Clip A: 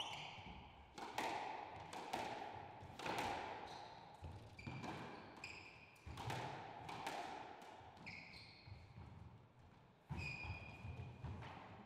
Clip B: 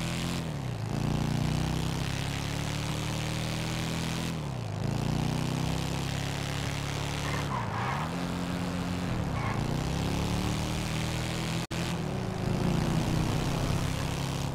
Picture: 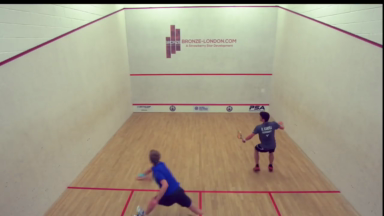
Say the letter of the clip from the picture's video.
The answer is A